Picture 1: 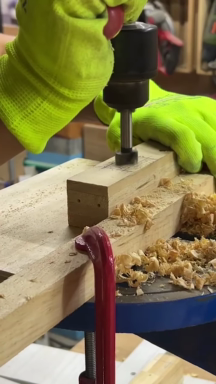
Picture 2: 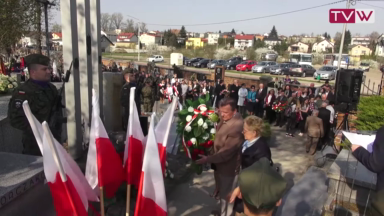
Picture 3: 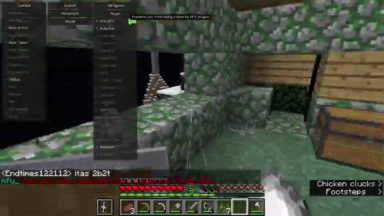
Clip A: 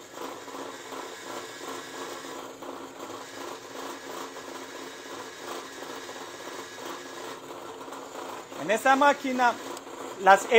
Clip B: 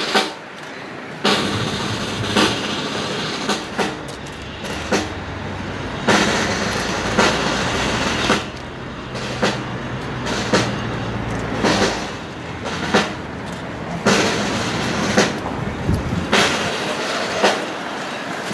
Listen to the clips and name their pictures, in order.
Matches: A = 1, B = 2